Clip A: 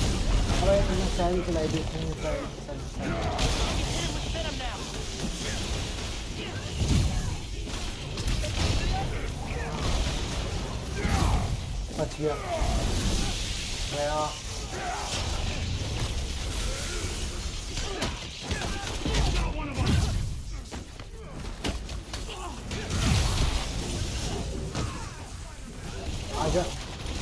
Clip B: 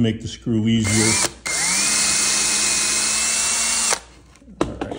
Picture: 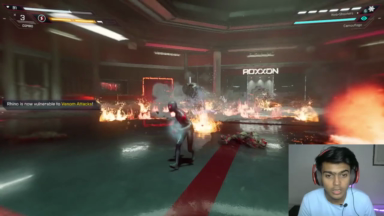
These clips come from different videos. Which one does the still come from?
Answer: A